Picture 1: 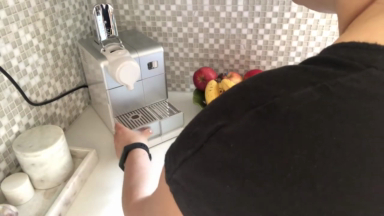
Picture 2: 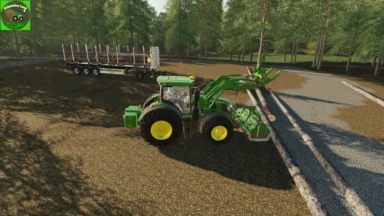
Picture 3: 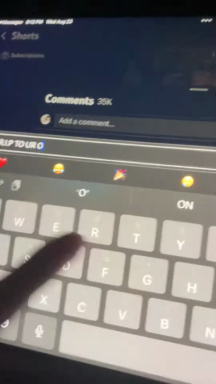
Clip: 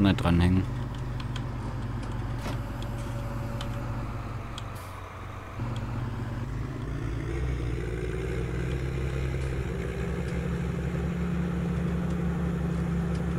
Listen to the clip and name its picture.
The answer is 2